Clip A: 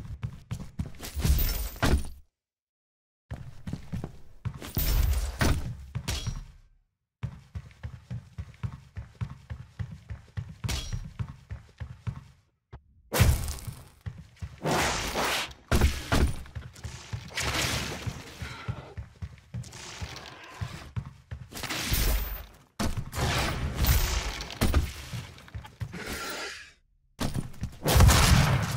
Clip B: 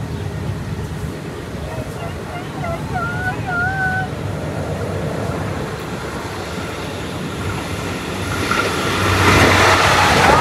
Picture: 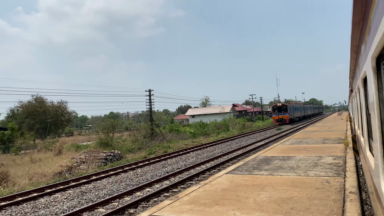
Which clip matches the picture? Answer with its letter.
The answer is B